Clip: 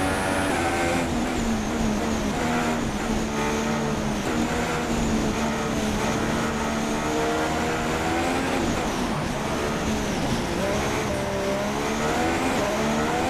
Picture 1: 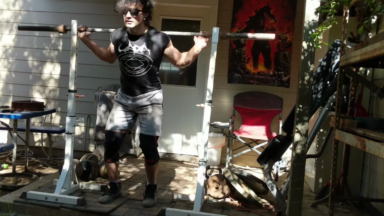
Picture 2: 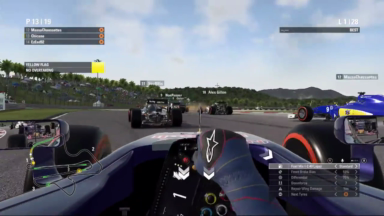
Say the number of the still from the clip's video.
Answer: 2